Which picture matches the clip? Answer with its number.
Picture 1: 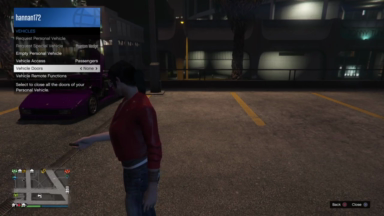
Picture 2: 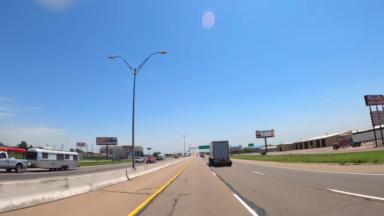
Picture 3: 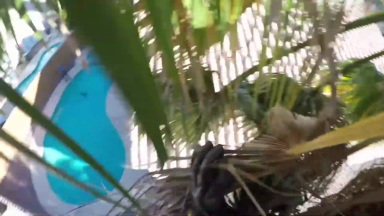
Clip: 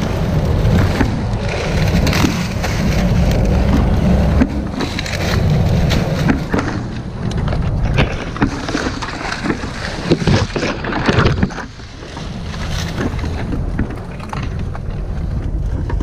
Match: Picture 3